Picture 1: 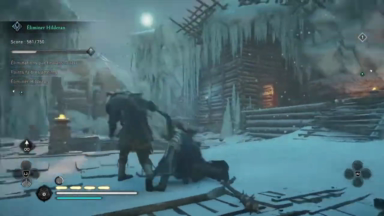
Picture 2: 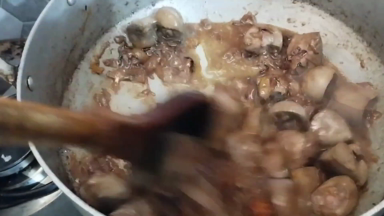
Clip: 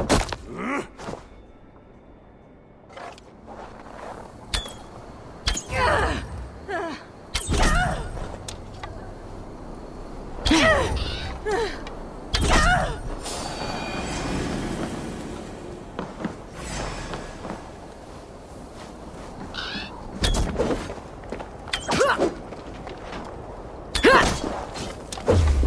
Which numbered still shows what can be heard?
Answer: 1